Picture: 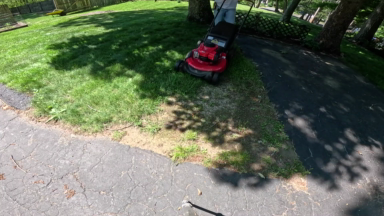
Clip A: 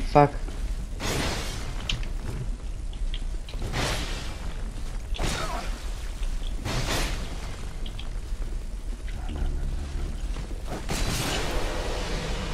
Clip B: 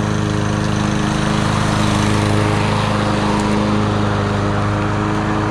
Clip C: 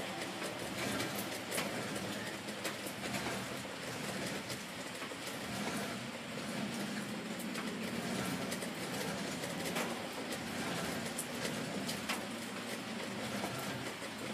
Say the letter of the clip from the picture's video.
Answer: B